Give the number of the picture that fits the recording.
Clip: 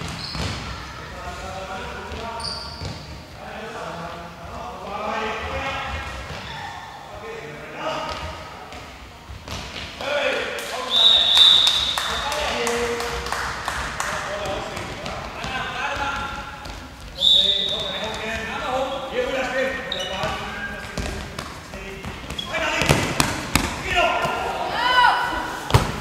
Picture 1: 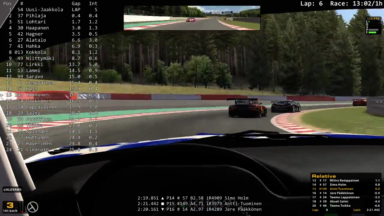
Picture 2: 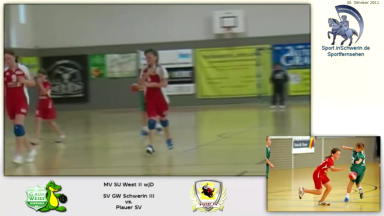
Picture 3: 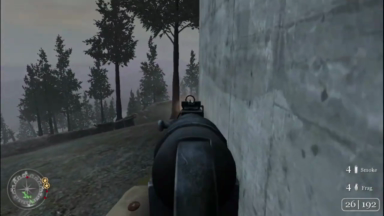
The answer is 2